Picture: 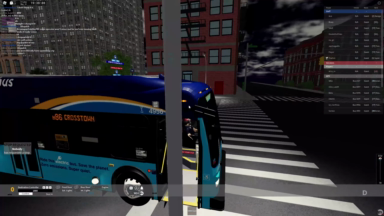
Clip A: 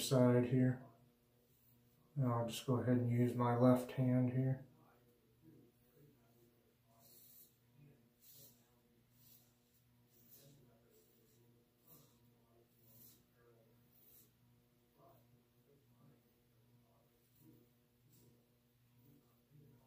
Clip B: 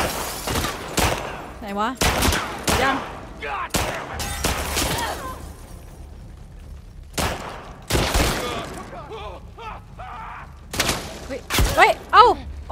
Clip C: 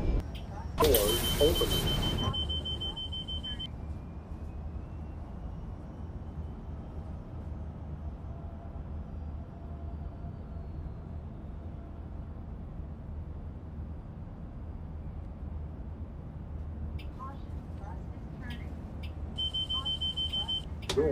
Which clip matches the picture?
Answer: C